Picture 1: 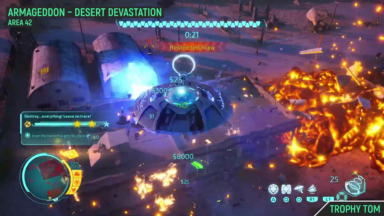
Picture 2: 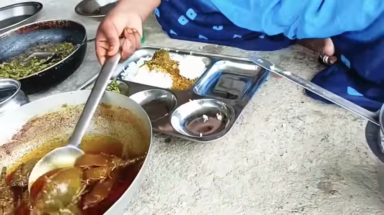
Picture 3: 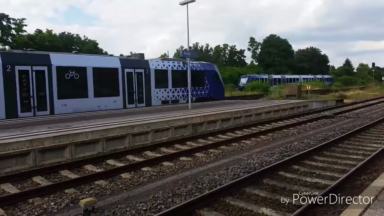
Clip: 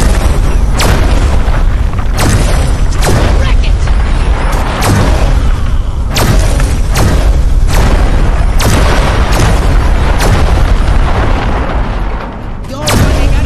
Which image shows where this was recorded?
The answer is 1